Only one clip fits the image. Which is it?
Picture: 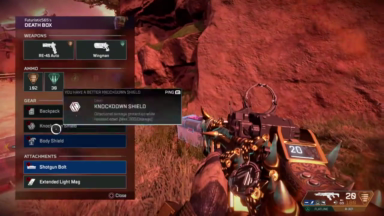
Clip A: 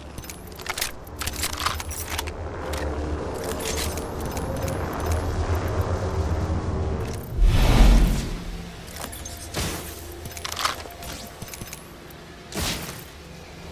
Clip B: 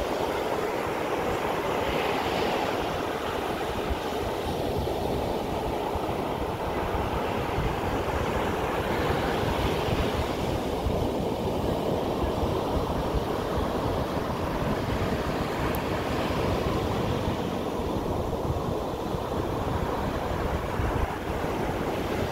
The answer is A